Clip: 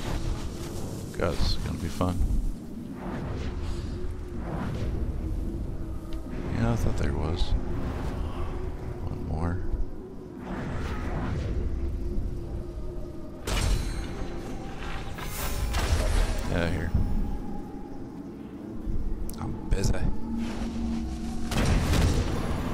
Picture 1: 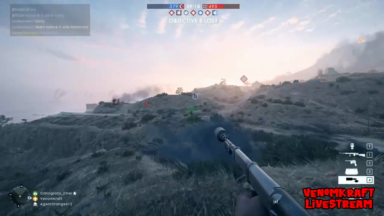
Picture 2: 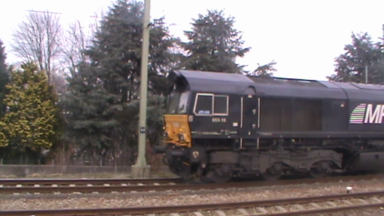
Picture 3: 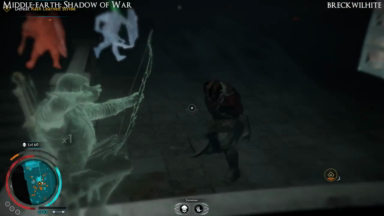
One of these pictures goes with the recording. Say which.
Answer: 3